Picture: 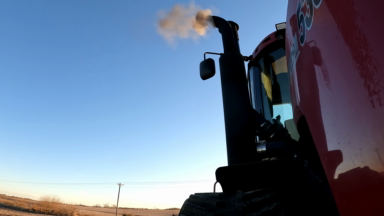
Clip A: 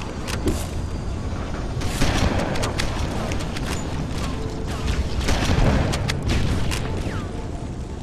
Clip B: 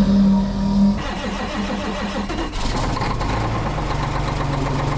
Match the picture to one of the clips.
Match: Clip B